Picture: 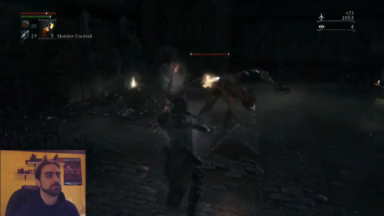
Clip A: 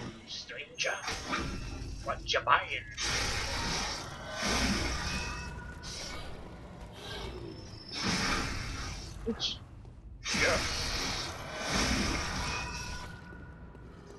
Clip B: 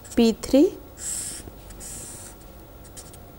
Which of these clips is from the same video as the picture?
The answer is A